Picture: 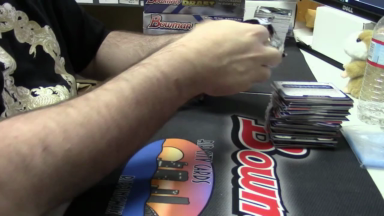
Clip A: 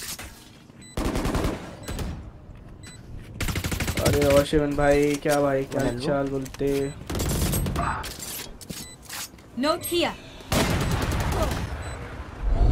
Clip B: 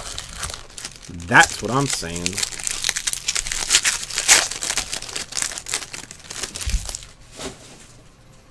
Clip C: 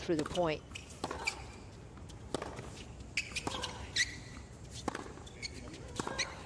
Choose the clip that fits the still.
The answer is B